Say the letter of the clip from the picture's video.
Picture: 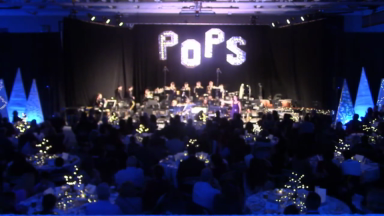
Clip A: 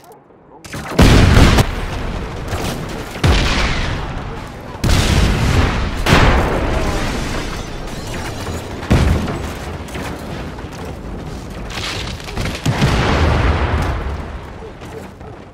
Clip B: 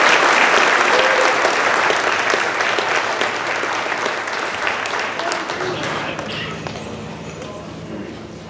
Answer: B